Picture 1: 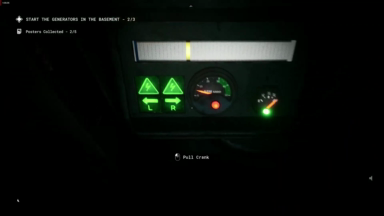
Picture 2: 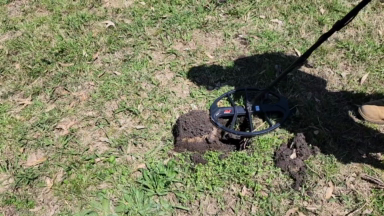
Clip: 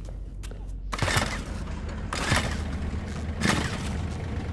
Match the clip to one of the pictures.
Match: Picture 1